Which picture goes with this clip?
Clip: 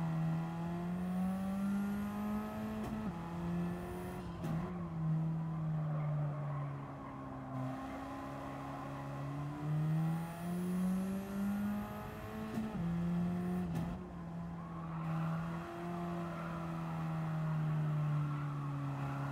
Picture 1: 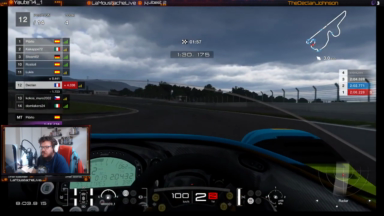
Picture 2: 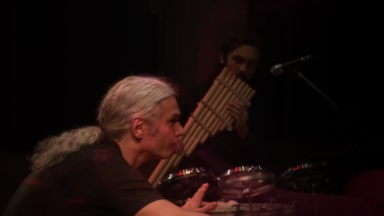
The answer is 1